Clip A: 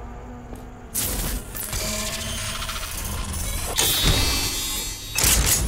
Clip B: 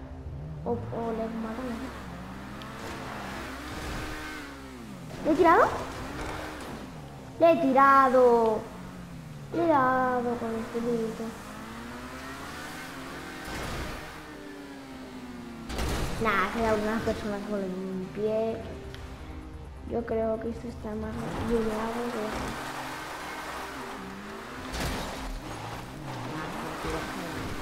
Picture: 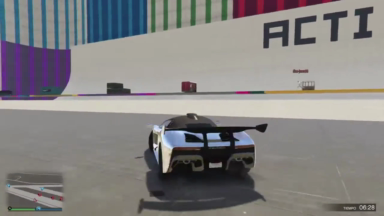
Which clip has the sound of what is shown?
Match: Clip B